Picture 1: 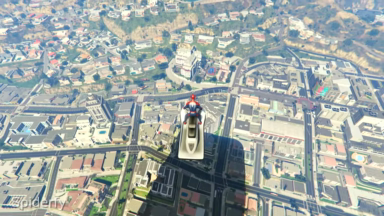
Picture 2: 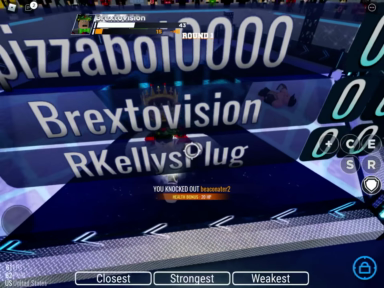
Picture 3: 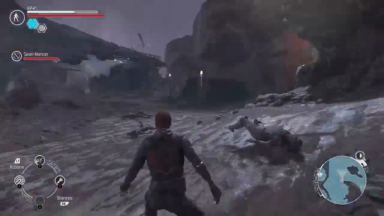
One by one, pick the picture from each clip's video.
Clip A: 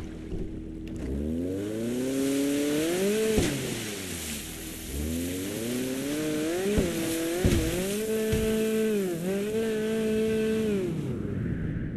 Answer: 1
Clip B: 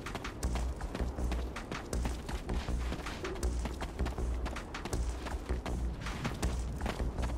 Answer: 3